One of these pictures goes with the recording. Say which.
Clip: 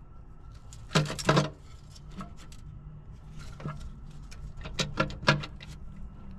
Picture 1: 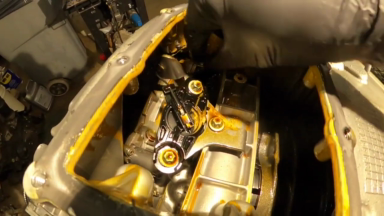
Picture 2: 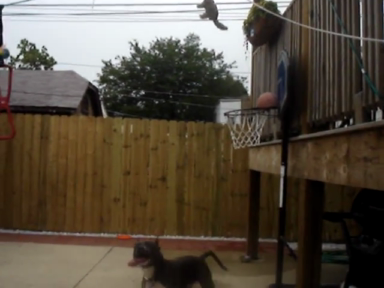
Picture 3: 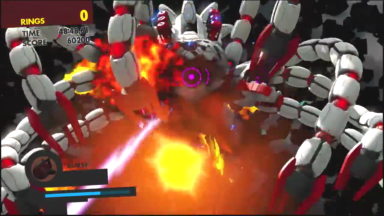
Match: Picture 1